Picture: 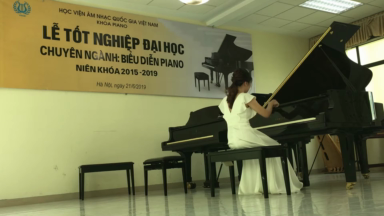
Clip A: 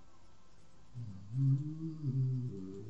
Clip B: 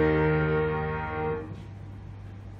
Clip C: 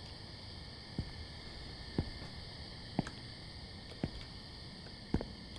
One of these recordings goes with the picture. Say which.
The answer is B